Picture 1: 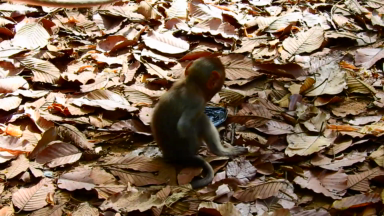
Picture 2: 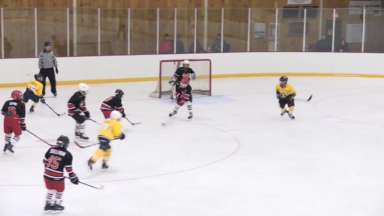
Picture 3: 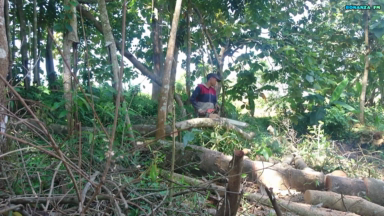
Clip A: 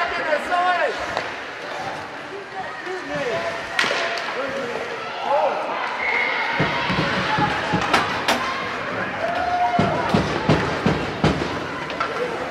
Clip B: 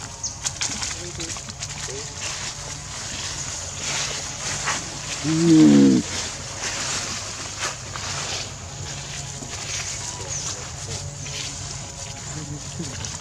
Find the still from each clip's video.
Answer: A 2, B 1